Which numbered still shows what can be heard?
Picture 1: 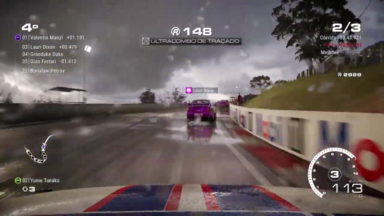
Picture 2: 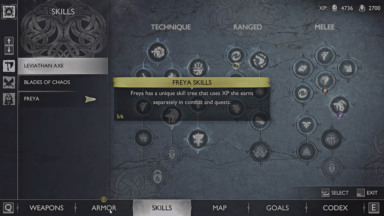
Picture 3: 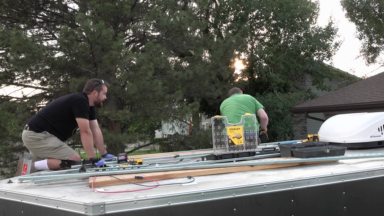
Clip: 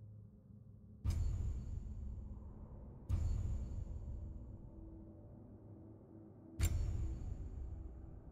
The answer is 2